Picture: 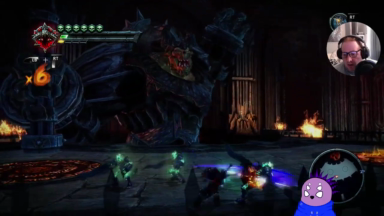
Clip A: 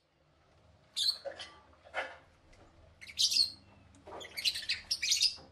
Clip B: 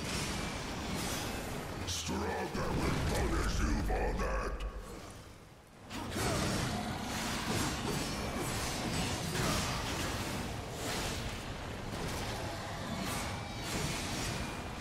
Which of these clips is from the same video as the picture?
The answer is B